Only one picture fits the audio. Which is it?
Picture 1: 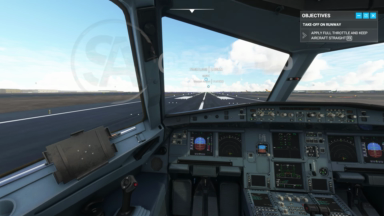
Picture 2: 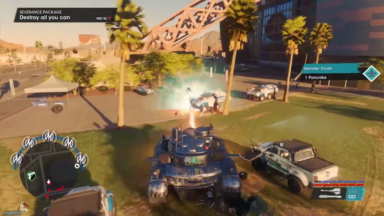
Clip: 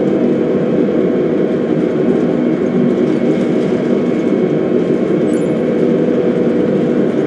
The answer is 1